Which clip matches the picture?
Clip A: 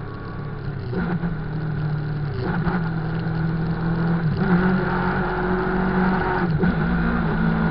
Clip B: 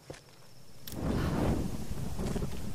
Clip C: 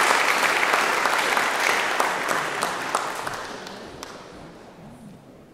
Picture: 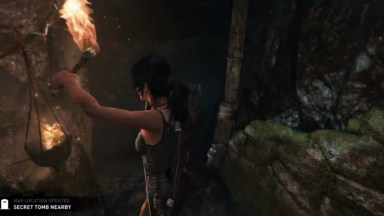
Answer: B